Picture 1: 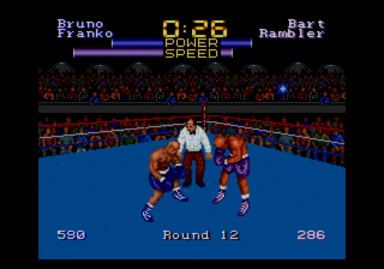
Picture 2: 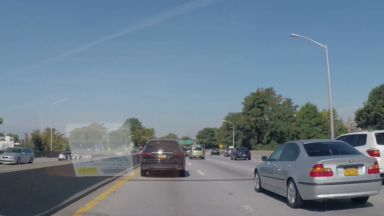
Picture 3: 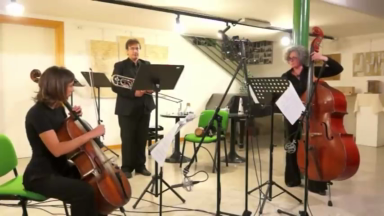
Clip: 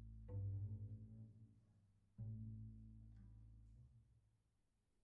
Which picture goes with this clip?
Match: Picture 3